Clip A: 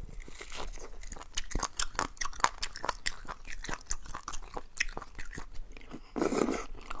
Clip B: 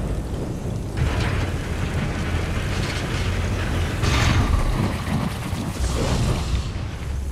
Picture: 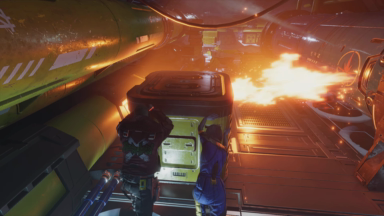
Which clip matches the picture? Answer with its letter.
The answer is B